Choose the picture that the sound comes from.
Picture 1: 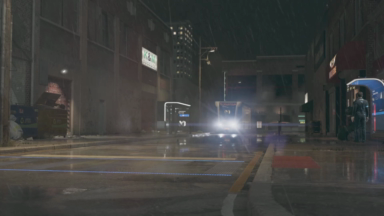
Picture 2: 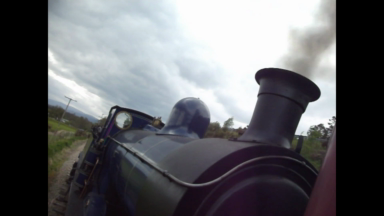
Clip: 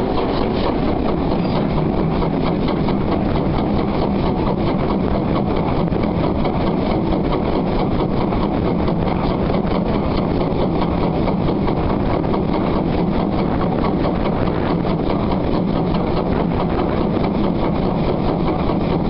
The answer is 2